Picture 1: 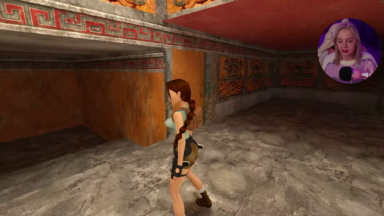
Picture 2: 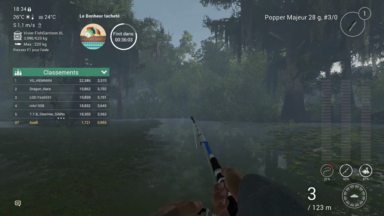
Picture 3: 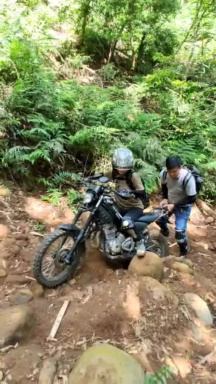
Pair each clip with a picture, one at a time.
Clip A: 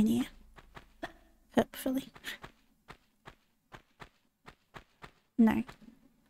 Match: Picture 1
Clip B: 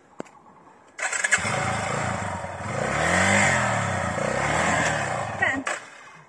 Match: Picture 3